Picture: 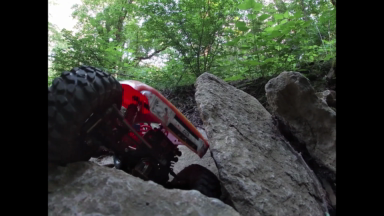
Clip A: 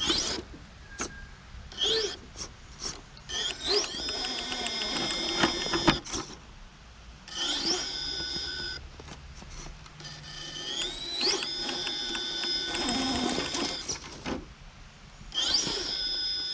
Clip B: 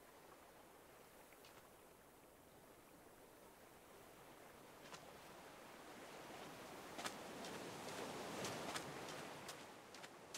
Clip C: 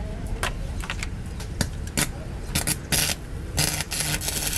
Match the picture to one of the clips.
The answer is A